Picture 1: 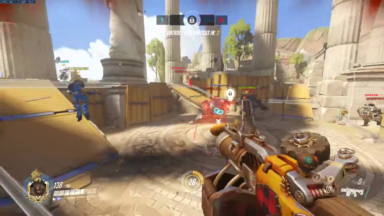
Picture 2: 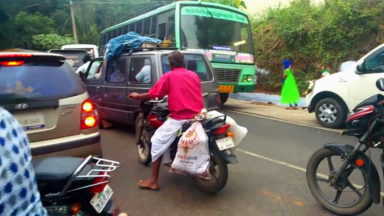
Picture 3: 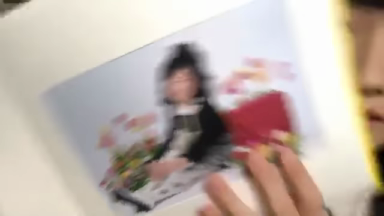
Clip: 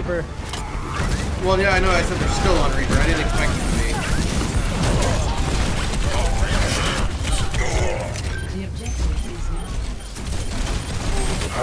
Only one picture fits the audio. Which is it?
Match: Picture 1